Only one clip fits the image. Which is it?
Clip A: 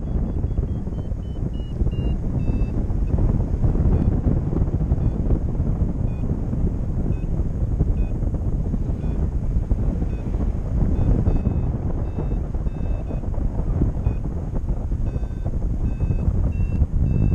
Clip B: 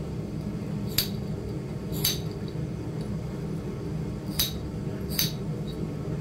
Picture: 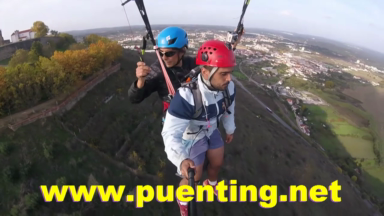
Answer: A